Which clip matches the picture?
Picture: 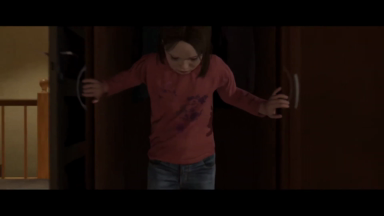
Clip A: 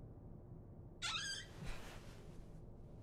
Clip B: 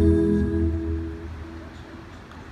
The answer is A